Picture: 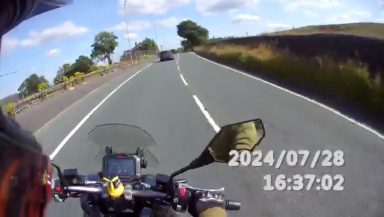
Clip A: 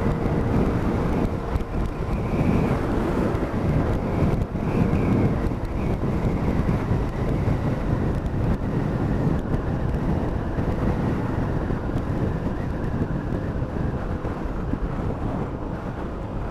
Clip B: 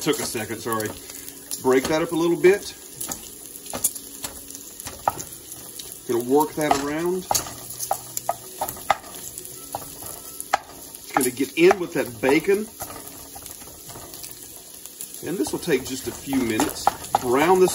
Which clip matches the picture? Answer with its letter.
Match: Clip A